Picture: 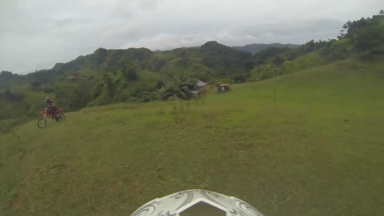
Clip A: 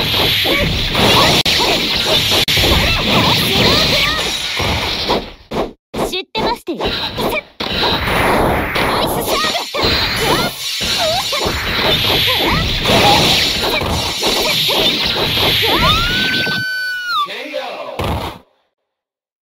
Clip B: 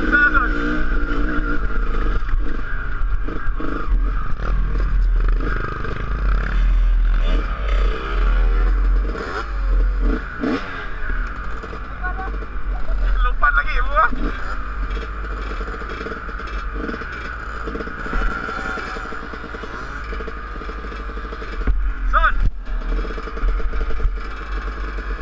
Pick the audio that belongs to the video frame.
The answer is B